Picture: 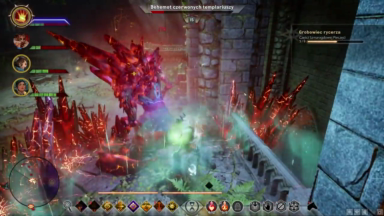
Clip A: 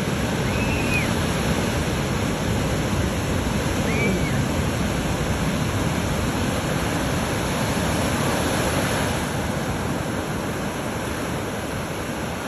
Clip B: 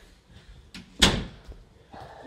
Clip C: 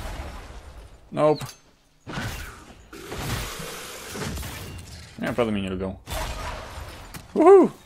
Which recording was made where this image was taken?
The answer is C